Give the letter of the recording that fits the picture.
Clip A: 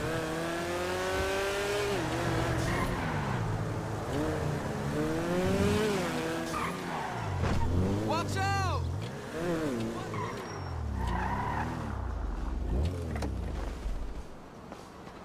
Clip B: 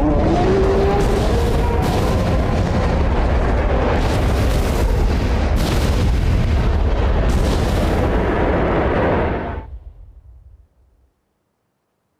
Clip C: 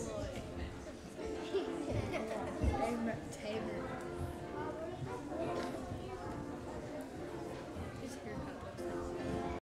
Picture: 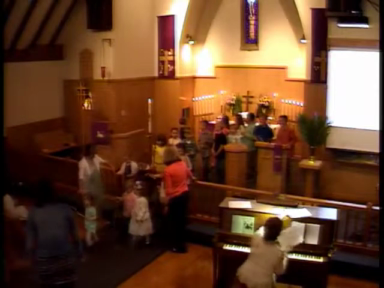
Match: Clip C